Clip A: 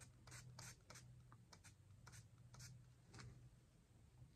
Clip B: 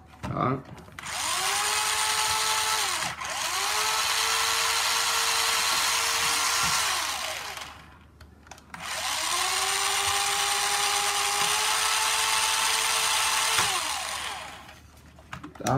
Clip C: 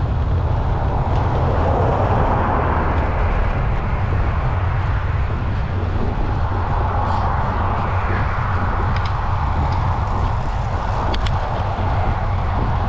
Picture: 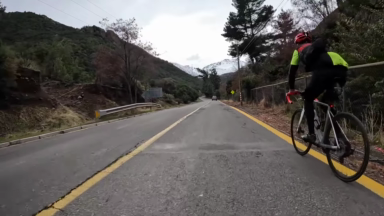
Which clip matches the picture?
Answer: C